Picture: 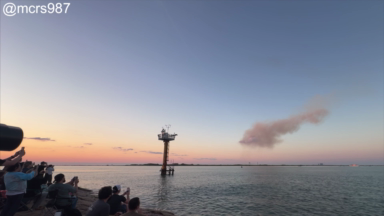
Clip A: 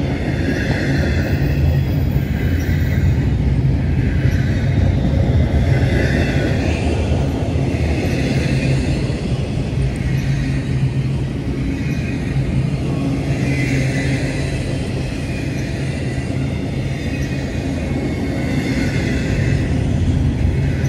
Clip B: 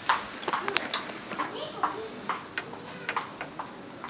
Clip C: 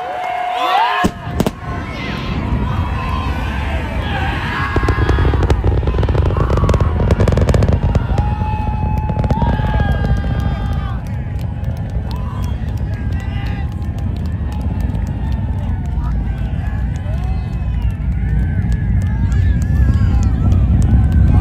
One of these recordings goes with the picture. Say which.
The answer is C